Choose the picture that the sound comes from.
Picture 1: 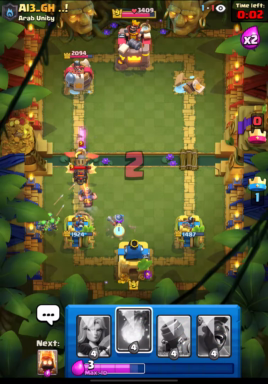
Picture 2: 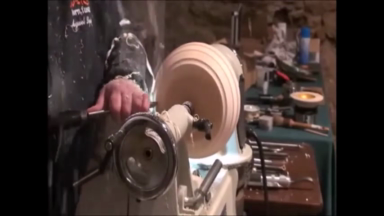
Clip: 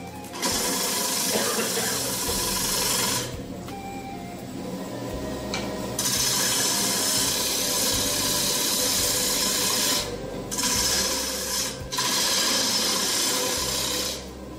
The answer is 2